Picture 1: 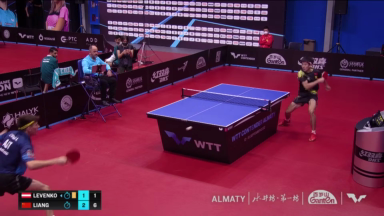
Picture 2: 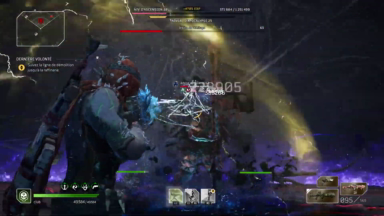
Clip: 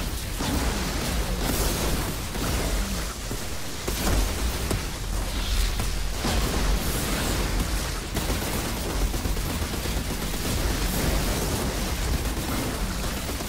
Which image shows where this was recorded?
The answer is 2